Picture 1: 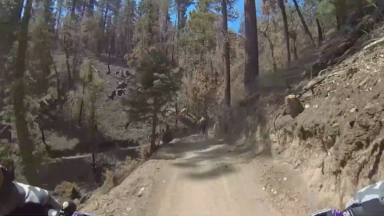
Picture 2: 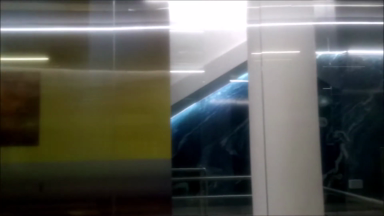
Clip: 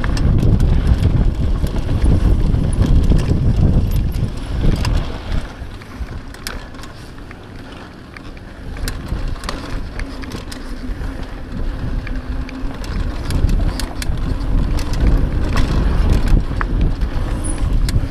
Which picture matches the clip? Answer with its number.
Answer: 1